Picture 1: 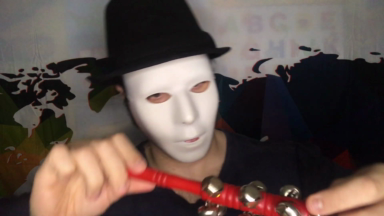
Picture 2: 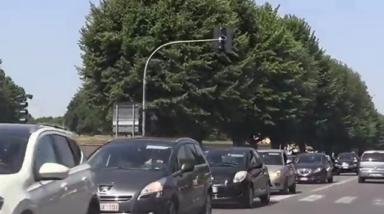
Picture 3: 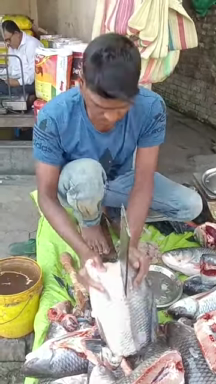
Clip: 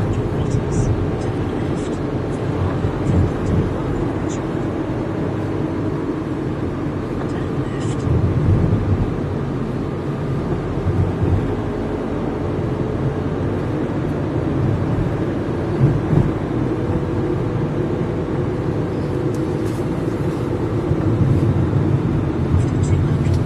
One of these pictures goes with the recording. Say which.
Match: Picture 2